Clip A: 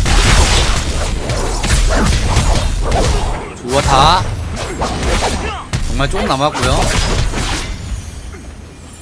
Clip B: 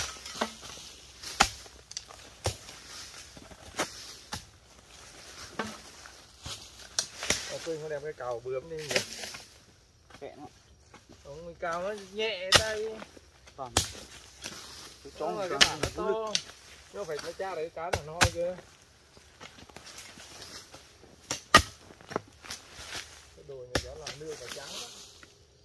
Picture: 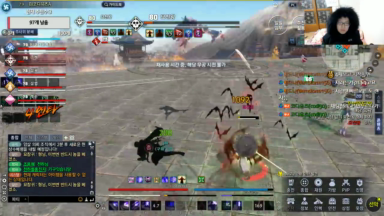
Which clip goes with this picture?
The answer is A